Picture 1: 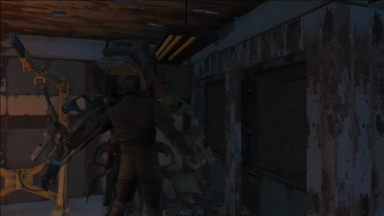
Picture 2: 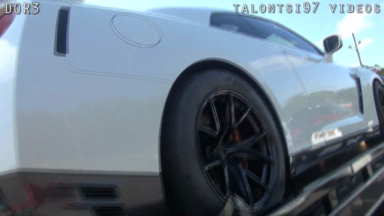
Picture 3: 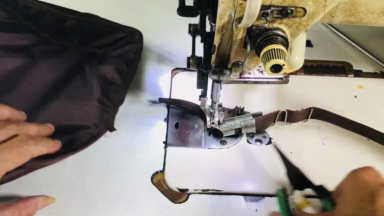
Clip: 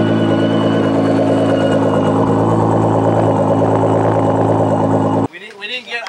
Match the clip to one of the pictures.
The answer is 2